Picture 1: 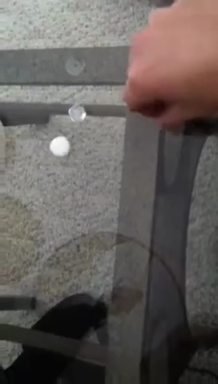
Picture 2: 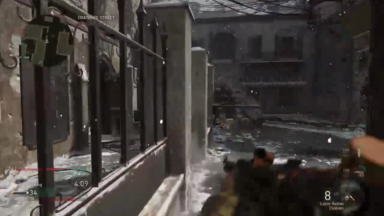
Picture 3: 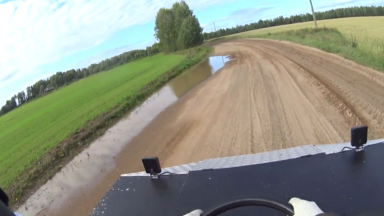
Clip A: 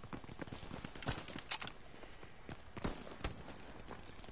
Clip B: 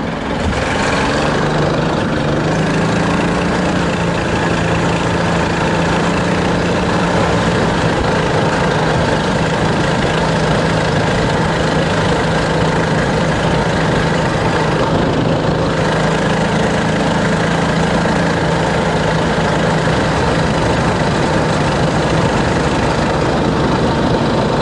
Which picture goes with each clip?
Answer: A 2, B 3